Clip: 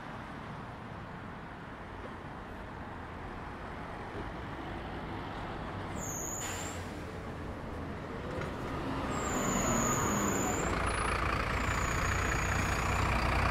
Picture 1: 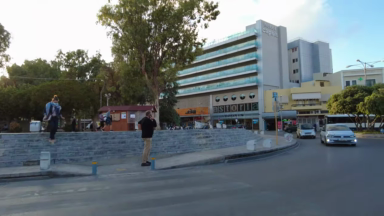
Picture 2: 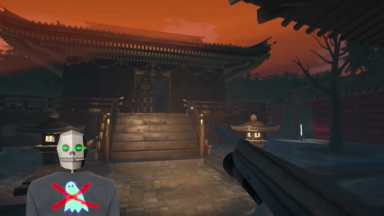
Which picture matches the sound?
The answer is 1